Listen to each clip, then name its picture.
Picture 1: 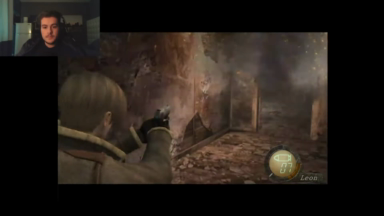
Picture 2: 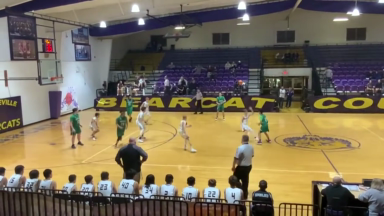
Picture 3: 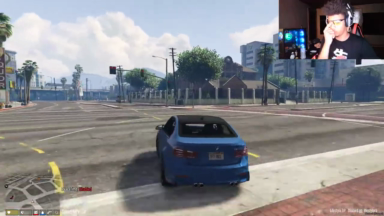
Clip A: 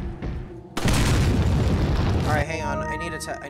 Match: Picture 1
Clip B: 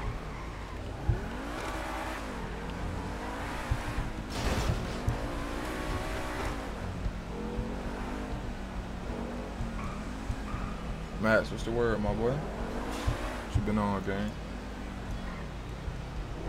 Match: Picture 3